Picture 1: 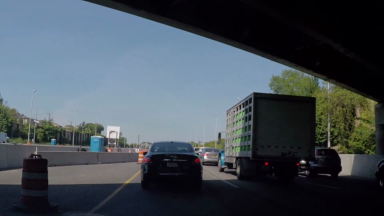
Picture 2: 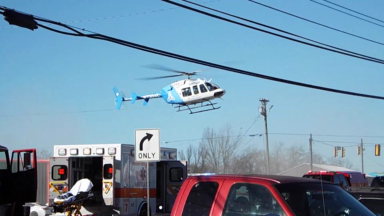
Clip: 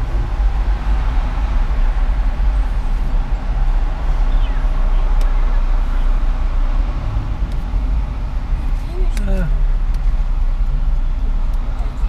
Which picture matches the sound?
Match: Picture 1